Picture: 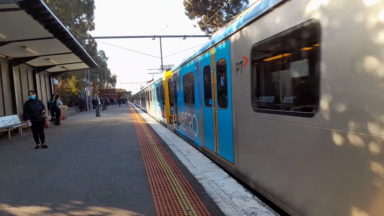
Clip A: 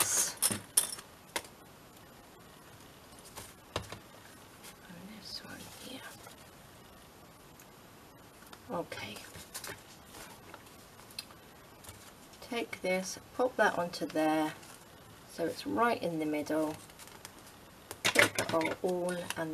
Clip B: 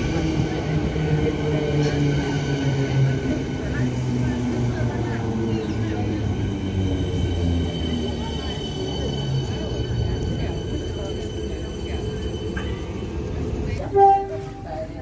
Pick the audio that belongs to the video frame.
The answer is B